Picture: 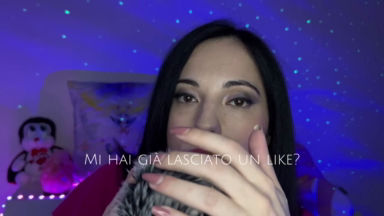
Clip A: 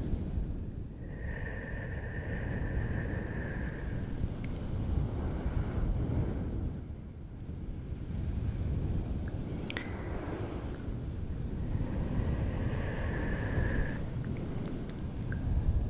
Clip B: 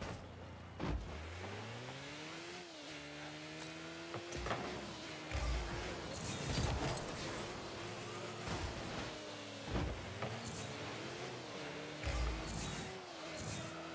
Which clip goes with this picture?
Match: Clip A